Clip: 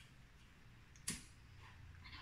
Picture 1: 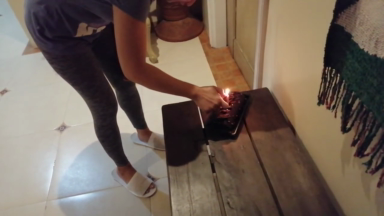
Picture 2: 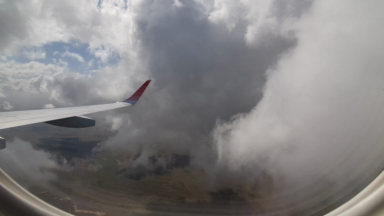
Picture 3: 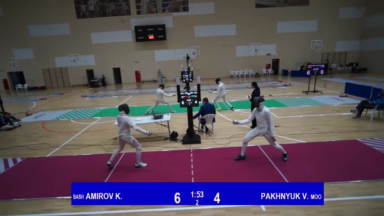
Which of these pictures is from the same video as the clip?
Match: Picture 1